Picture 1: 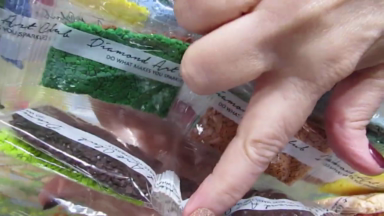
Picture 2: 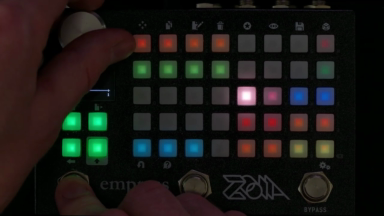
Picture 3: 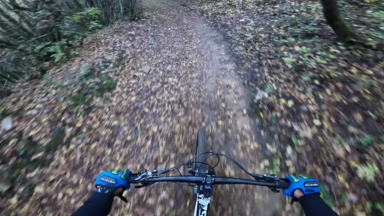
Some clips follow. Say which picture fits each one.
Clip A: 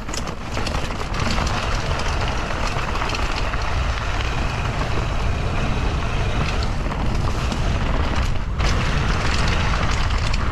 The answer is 3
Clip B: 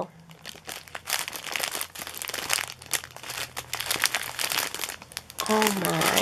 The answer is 1